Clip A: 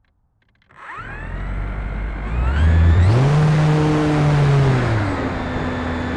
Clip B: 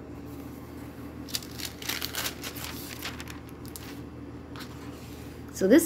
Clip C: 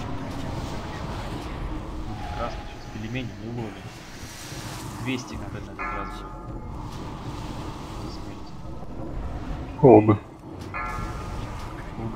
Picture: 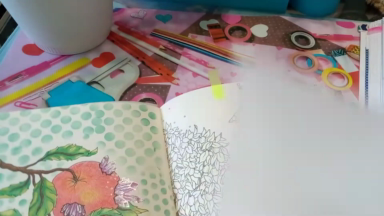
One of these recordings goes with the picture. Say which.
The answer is B